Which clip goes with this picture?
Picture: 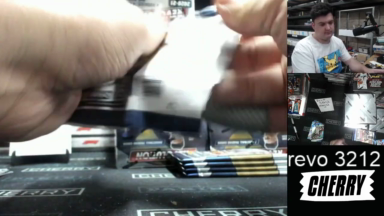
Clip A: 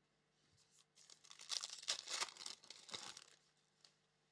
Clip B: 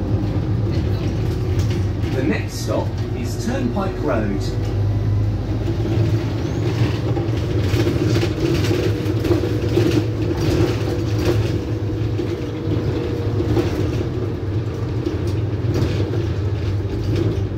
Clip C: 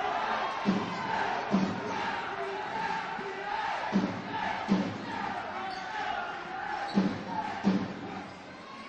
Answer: A